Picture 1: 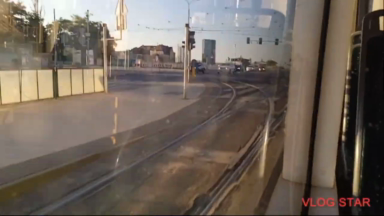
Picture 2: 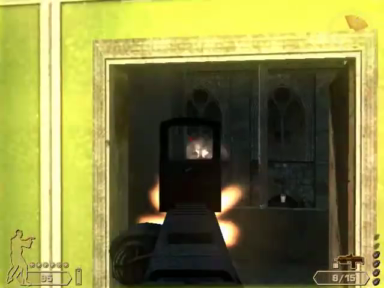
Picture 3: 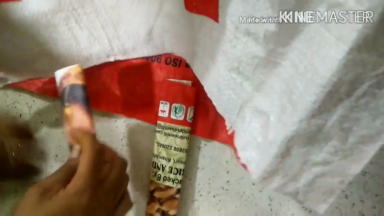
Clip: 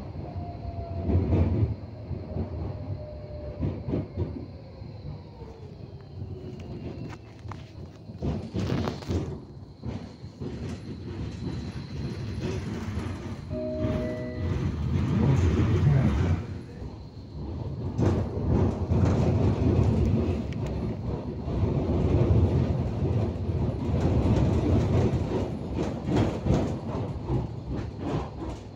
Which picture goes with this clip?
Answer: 1